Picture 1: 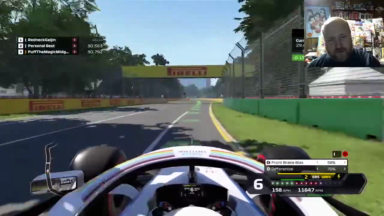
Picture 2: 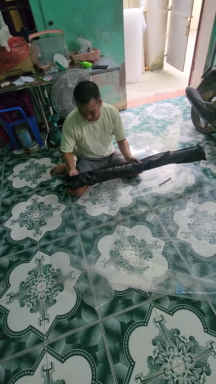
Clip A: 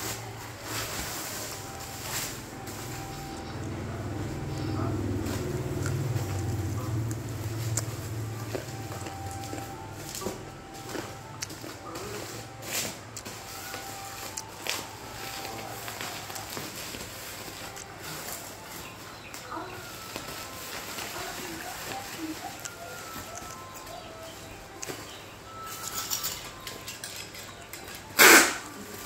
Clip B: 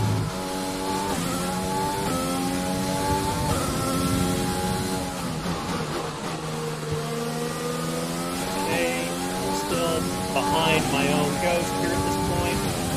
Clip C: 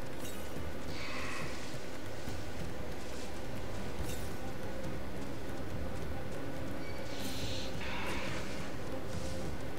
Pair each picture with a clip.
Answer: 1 B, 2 A